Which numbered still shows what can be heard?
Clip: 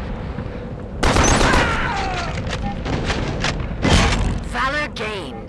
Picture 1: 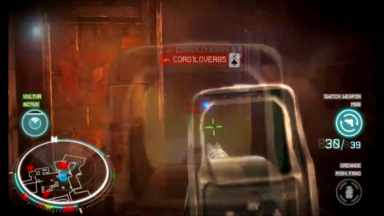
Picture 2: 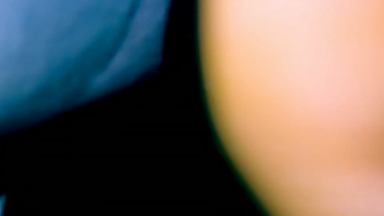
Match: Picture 1